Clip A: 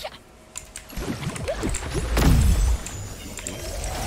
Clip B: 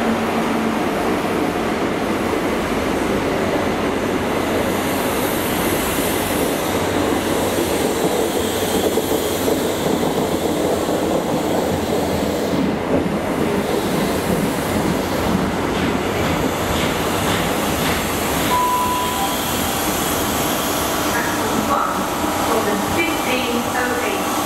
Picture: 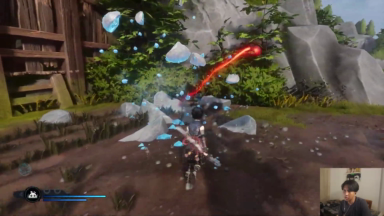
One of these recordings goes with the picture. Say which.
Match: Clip A